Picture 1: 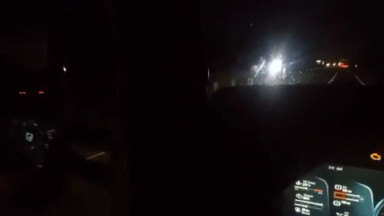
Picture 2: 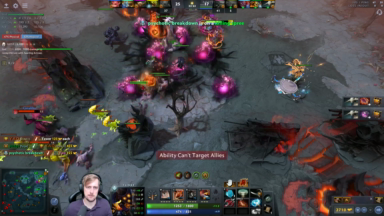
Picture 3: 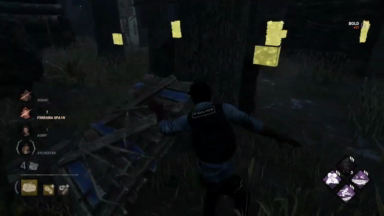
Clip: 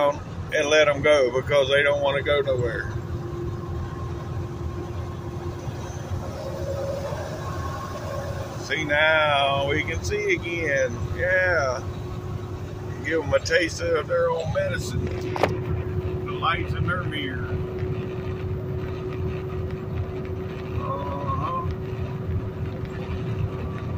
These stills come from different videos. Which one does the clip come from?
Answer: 1